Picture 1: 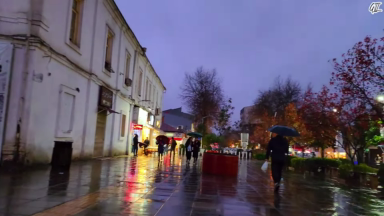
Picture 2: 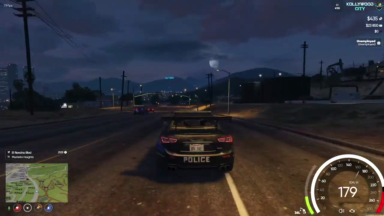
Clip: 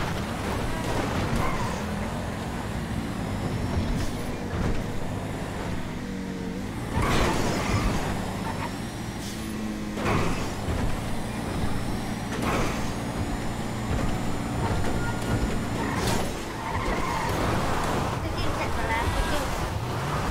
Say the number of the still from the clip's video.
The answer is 2